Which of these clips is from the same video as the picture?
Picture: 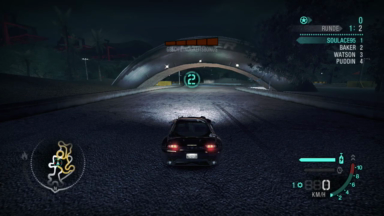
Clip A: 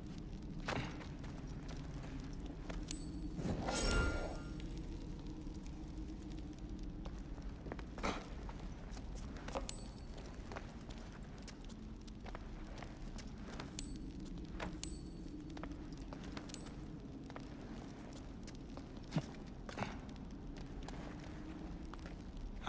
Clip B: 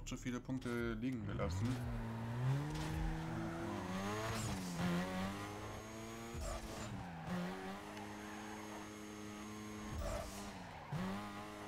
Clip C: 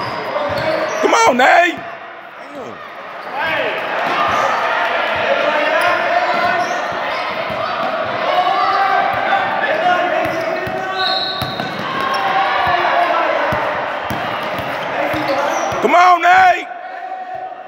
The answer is B